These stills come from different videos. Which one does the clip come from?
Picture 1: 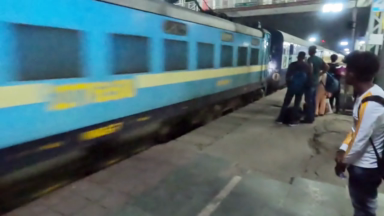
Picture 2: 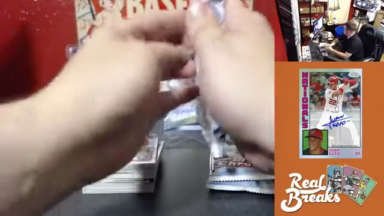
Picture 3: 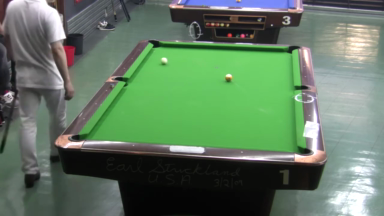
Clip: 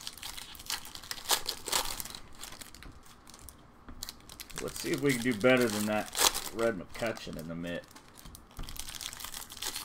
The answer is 2